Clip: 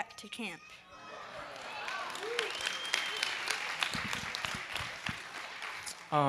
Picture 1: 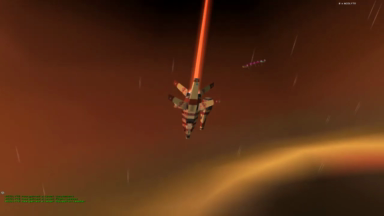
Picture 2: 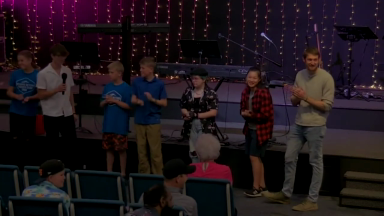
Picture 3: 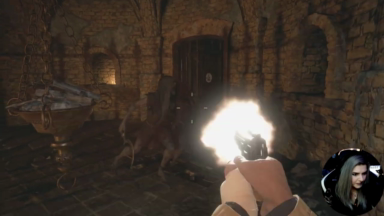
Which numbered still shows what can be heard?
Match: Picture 2